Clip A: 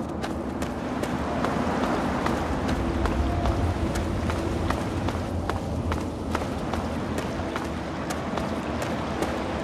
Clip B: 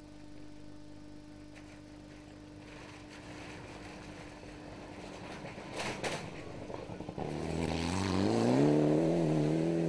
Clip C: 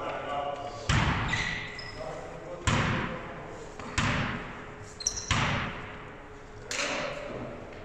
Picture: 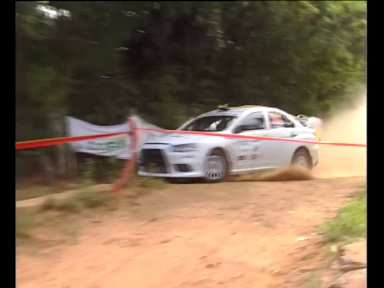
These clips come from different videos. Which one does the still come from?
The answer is B